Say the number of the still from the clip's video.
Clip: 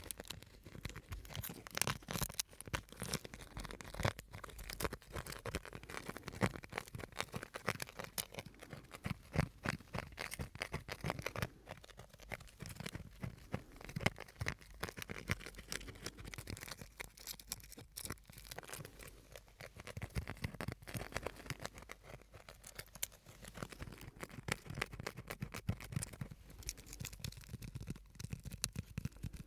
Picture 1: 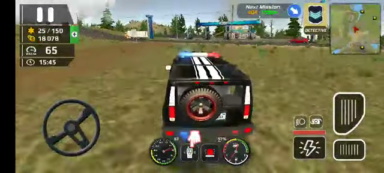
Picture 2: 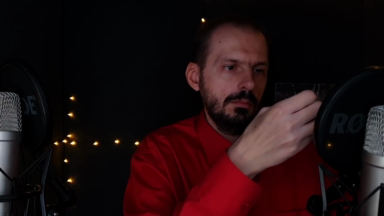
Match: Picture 2